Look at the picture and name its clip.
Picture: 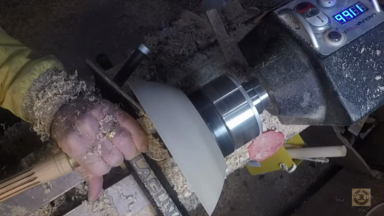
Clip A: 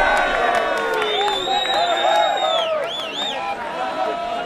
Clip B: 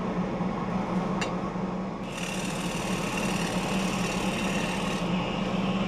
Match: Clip B